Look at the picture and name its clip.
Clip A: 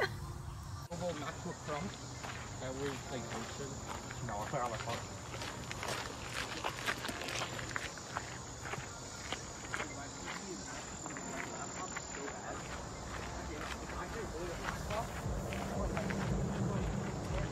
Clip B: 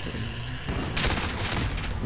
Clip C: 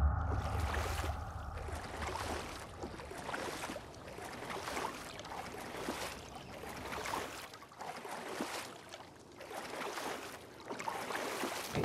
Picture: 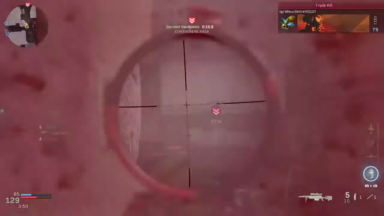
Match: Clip B